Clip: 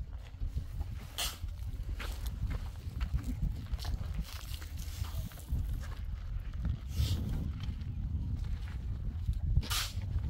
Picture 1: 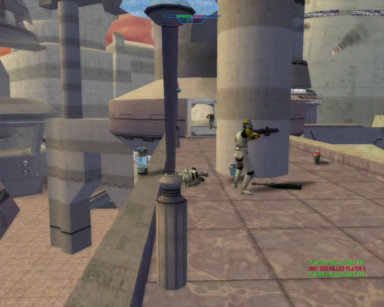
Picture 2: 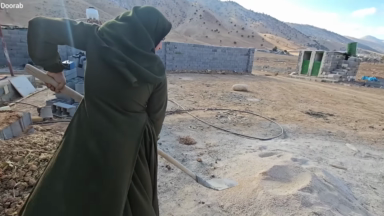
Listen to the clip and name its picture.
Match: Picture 2